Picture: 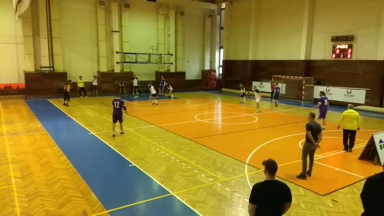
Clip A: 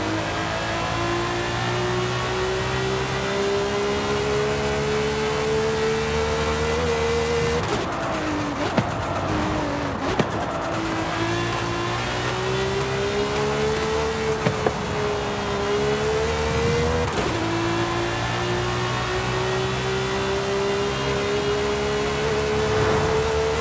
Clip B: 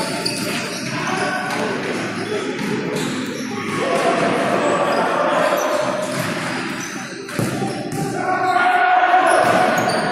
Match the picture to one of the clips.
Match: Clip B